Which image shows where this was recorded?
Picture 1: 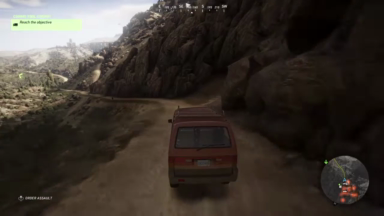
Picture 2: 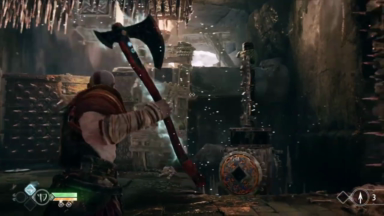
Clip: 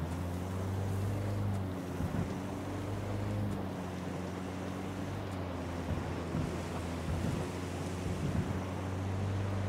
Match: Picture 1